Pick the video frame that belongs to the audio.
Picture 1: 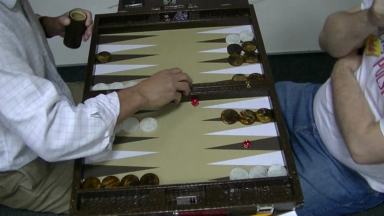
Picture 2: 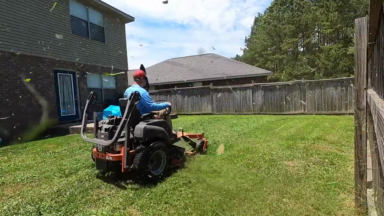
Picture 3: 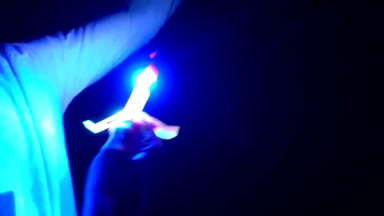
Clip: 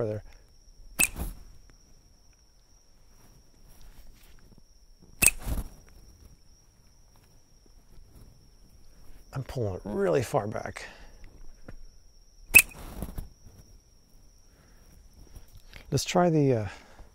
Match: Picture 3